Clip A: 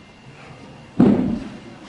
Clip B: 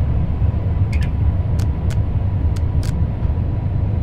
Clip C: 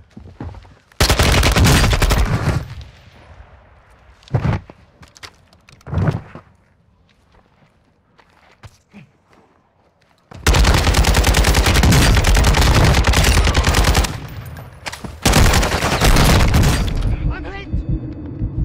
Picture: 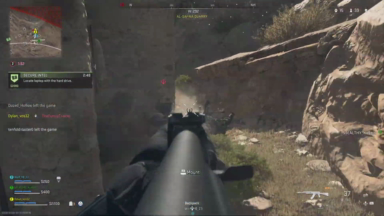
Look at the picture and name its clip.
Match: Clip C